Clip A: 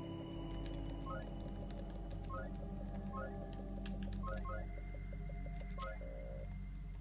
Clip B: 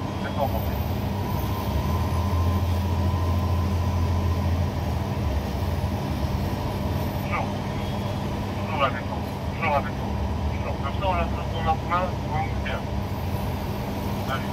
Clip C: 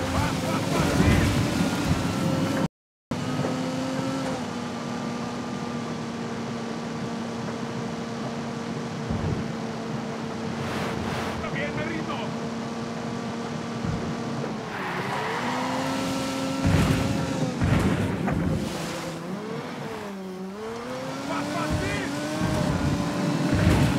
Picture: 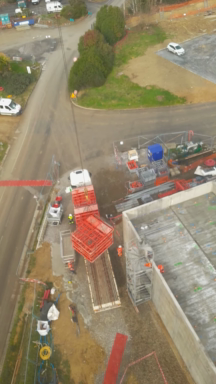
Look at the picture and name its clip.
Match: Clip B